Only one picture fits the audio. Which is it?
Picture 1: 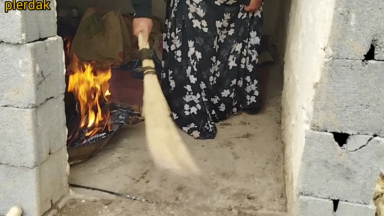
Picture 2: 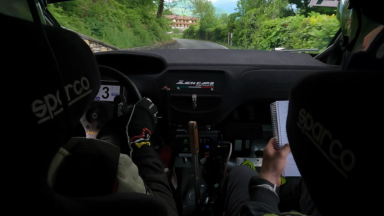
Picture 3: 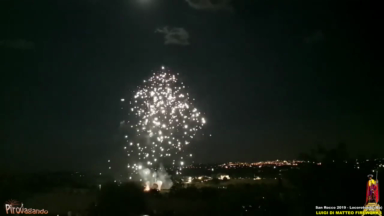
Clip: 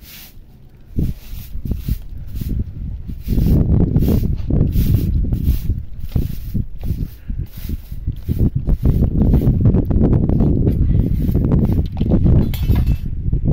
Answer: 1